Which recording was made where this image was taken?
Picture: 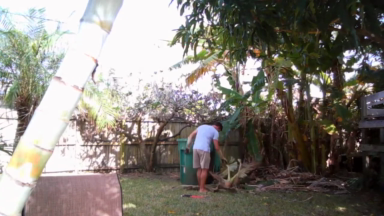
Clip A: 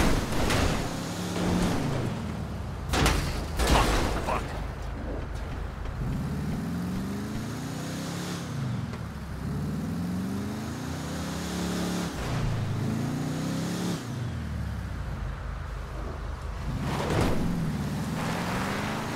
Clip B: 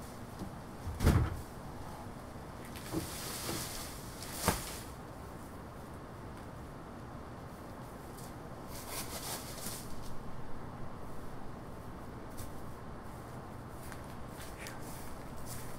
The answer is B